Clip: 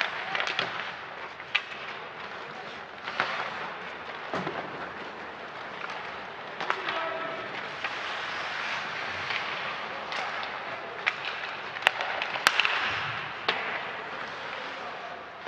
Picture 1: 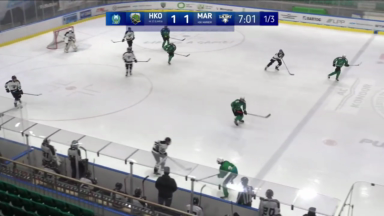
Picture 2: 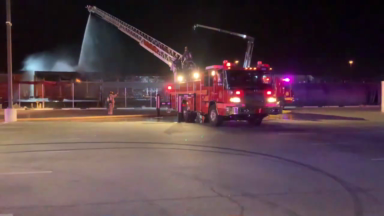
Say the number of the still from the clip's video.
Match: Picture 1